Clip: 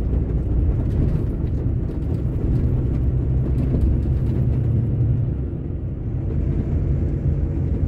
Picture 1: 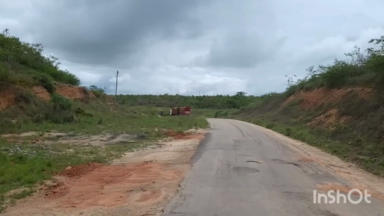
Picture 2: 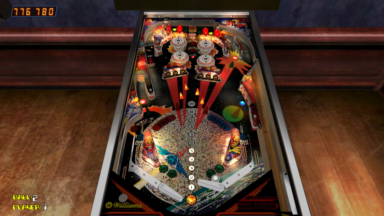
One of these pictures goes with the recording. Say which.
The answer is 1